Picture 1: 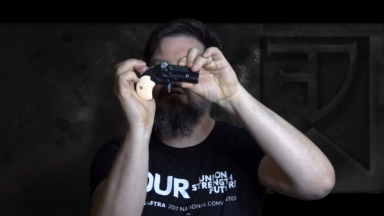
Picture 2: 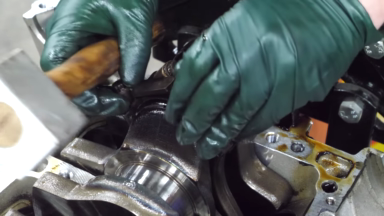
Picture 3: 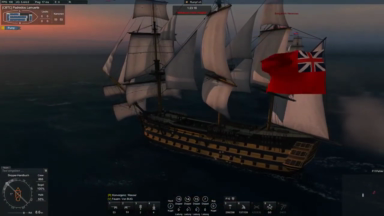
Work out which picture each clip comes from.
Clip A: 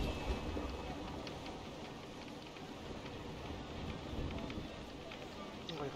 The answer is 3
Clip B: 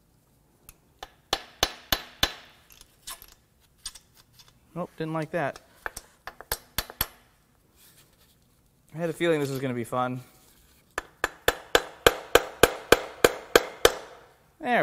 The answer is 2